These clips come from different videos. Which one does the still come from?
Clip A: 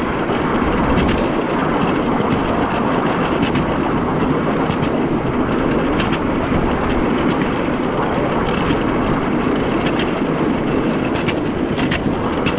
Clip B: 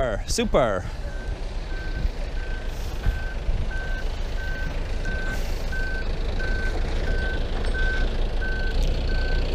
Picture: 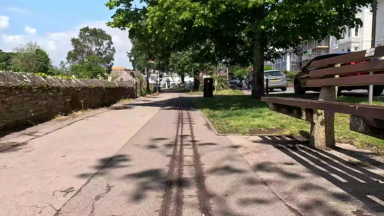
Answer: A